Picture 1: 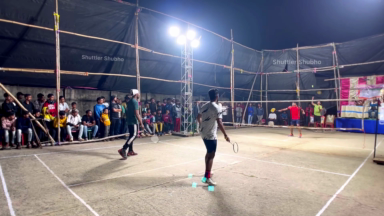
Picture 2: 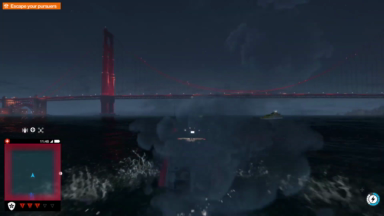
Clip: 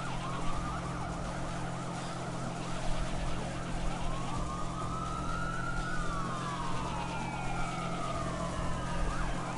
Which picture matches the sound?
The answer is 2